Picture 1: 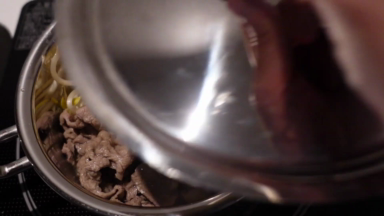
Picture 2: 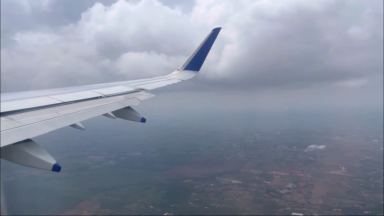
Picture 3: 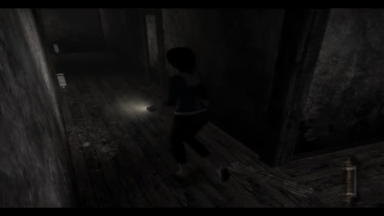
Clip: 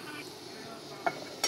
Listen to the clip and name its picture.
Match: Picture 1